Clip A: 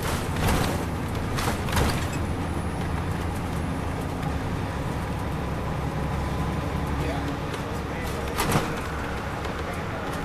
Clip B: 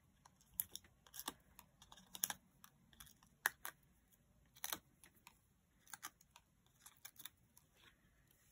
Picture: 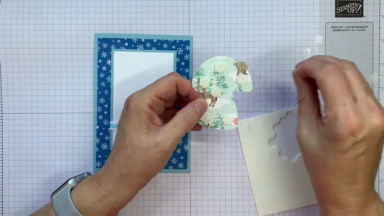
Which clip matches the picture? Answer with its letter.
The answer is B